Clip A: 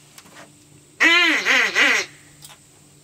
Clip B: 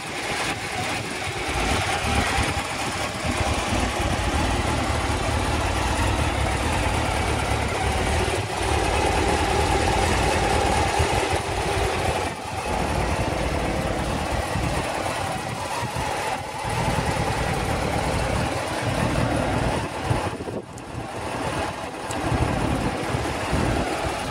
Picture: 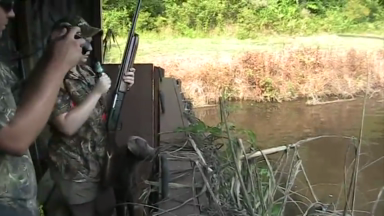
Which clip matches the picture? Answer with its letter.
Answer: A